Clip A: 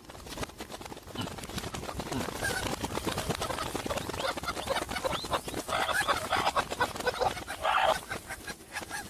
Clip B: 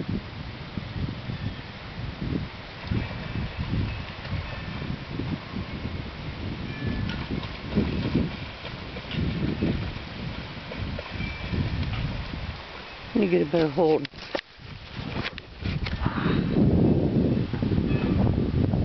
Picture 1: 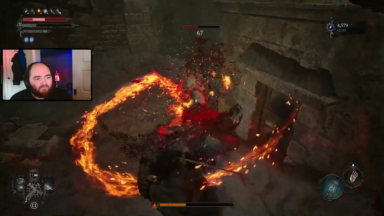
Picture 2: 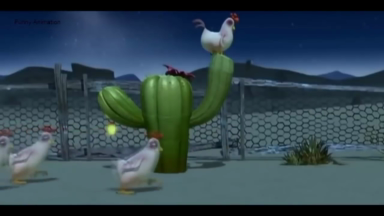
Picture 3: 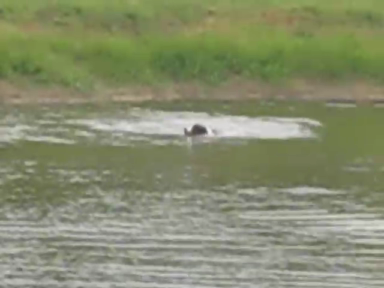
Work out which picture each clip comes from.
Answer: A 2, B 3